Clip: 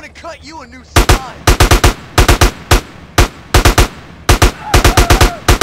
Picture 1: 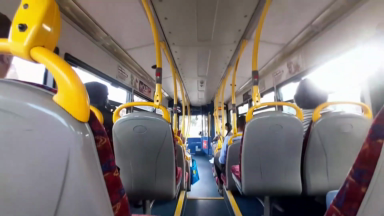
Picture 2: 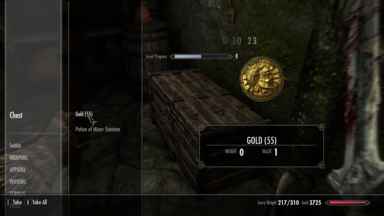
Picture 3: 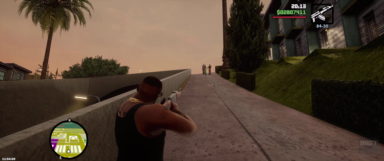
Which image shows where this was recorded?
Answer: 3